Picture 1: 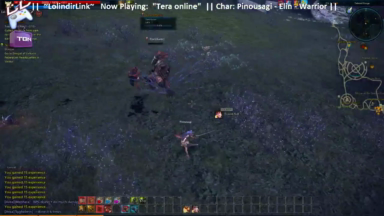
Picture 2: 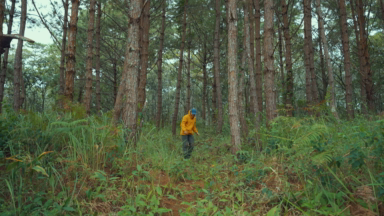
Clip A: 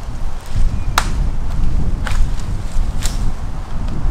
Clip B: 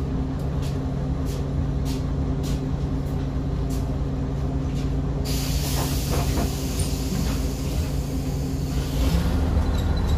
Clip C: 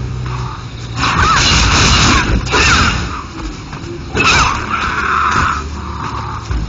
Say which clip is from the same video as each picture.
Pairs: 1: C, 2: A